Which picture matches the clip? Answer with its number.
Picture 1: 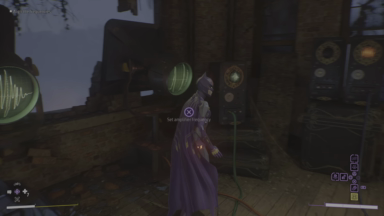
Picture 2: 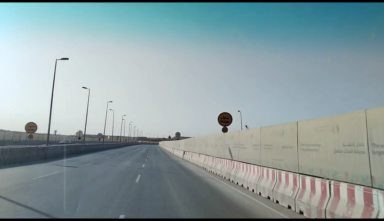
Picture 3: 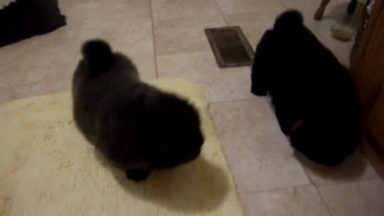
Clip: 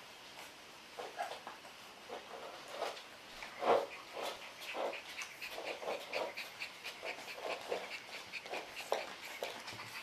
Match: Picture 3